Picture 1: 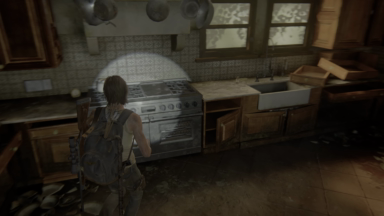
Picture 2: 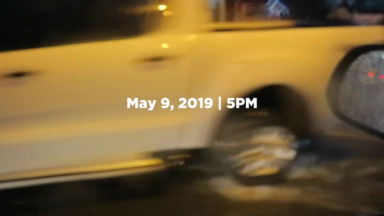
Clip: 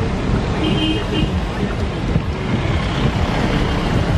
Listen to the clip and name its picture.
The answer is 2